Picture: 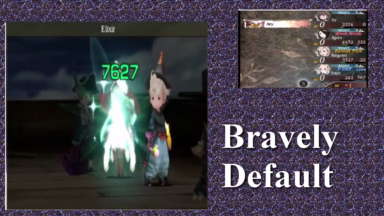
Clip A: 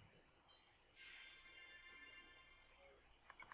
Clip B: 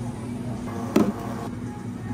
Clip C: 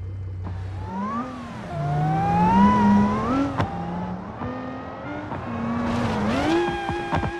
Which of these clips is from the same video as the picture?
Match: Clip A